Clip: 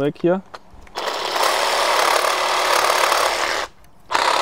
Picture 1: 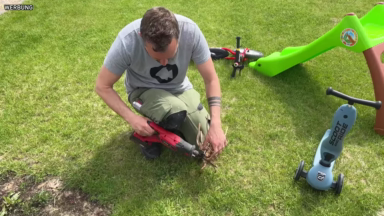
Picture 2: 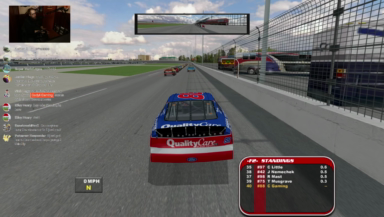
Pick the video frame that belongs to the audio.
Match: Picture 1